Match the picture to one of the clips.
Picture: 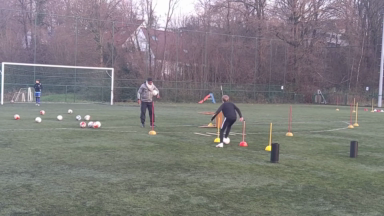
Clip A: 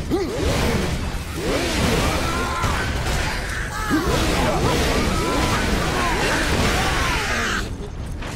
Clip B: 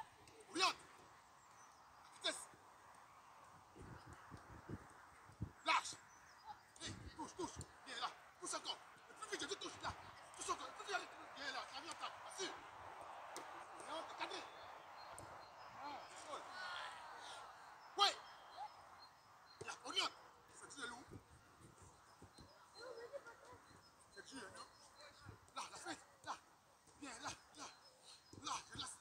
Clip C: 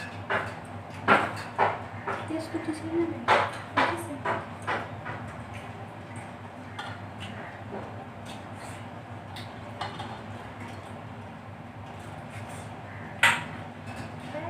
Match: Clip B